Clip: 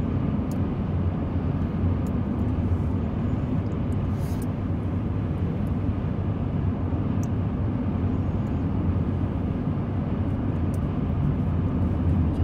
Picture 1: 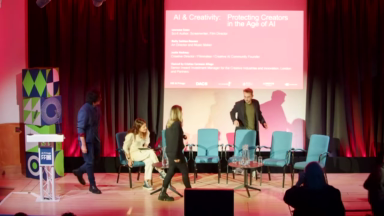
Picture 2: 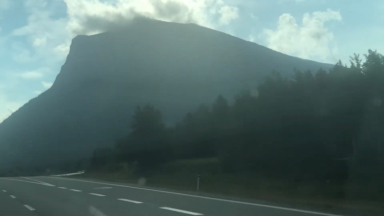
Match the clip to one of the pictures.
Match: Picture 2